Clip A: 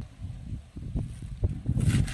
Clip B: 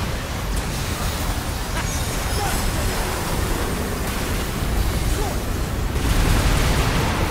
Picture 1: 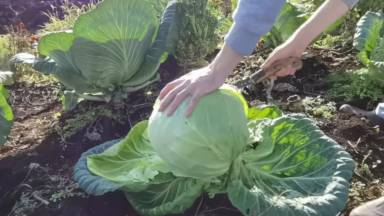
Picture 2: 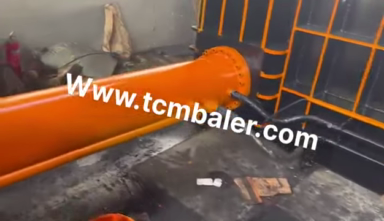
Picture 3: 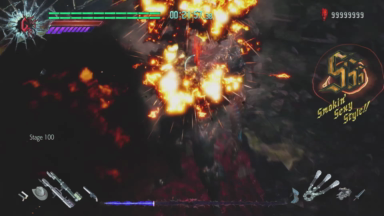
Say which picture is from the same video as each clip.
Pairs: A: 1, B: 3